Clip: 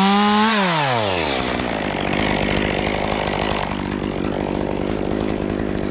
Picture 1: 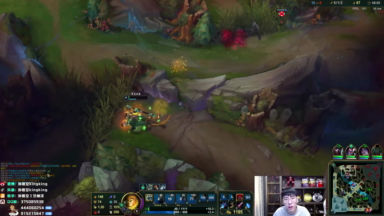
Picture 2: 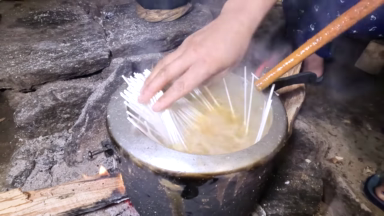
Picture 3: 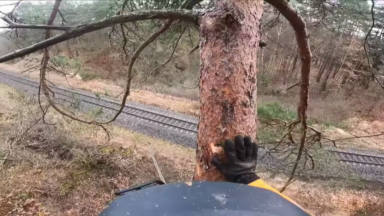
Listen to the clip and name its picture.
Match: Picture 3